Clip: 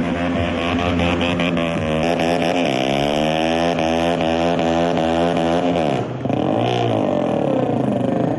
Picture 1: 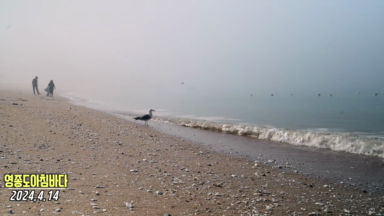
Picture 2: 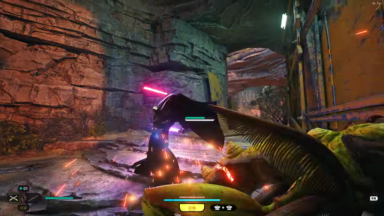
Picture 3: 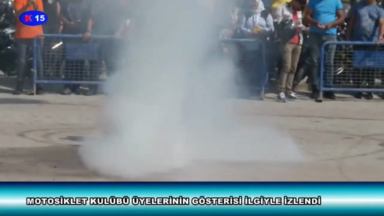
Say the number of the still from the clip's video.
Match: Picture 3